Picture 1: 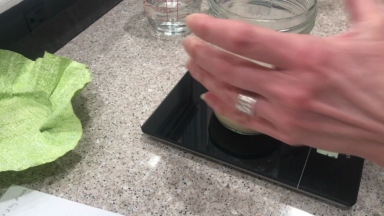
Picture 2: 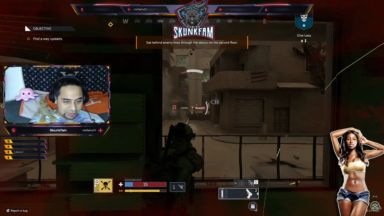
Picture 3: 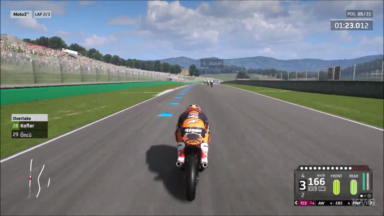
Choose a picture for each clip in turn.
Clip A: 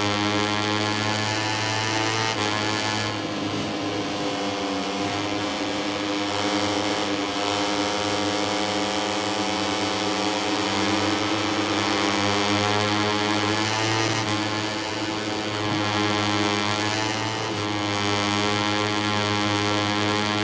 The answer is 3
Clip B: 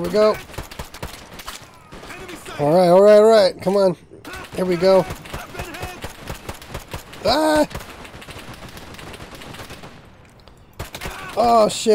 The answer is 2